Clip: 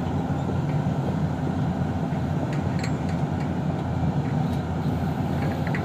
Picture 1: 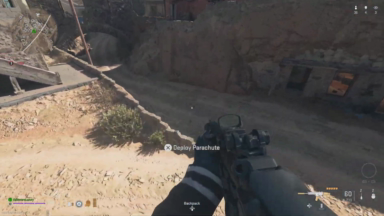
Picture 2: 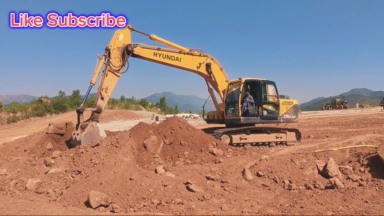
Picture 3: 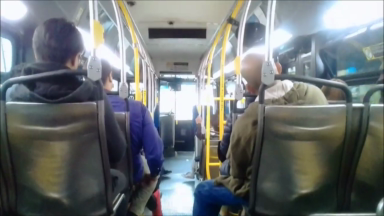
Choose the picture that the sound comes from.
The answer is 2